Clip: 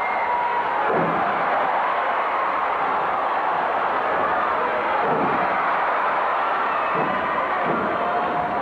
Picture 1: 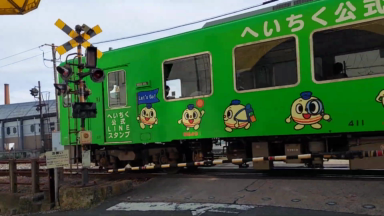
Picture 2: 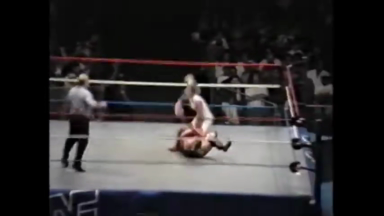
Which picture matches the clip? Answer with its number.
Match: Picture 2